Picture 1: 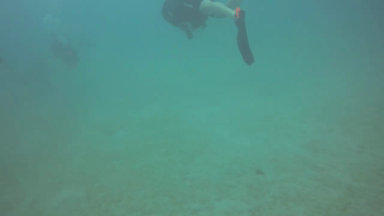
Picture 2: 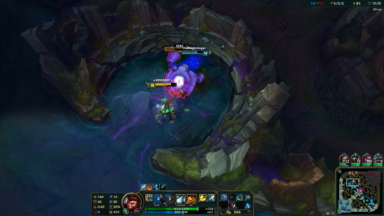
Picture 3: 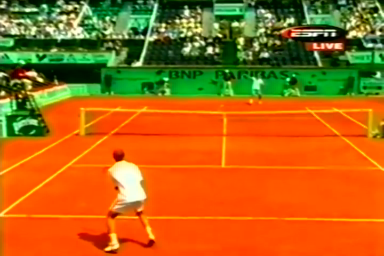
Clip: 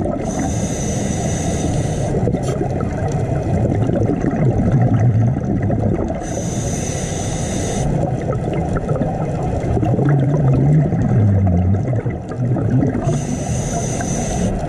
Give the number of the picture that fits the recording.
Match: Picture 1